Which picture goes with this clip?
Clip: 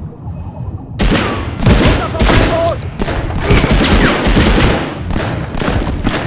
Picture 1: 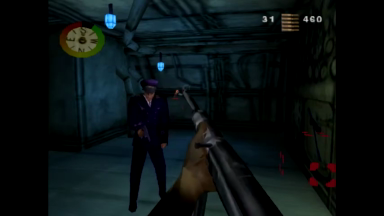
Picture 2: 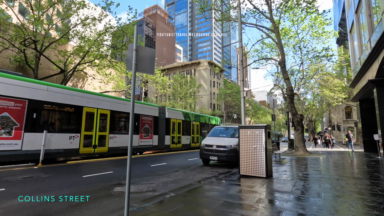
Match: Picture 1